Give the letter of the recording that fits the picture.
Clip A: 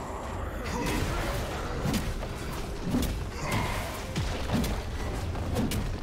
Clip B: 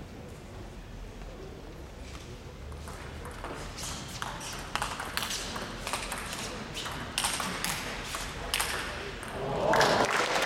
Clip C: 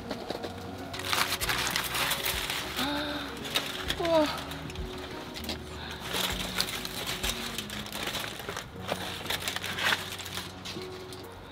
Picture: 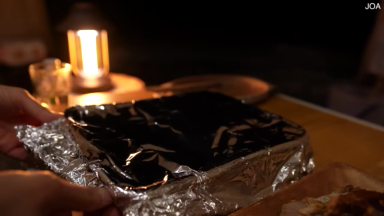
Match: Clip C